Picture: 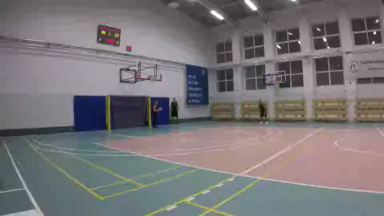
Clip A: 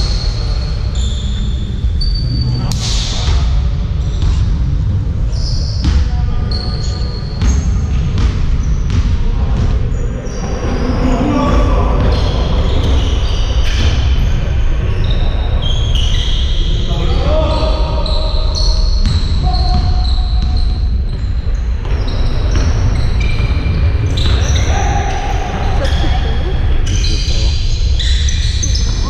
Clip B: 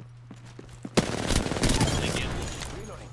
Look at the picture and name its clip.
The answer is A